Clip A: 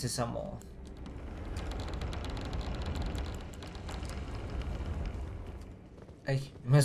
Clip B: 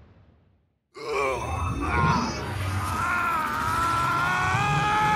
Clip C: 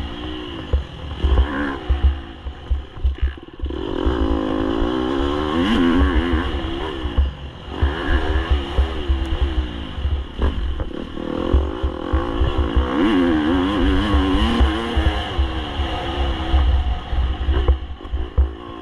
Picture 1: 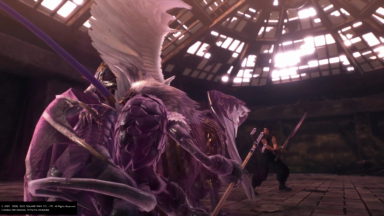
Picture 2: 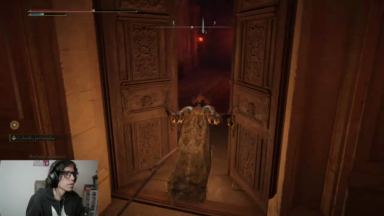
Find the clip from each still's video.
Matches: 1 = B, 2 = A